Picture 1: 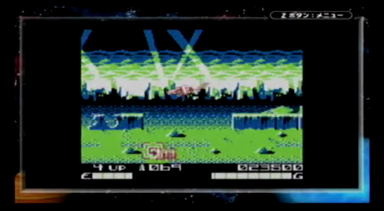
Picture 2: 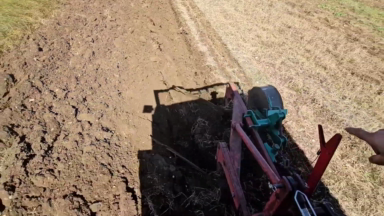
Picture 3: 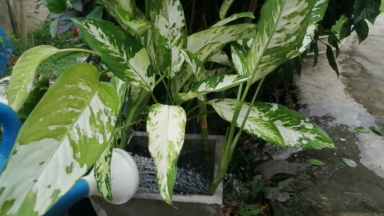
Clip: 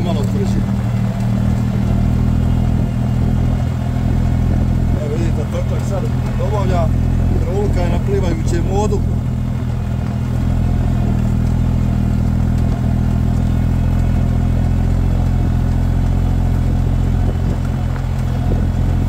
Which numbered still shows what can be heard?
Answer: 2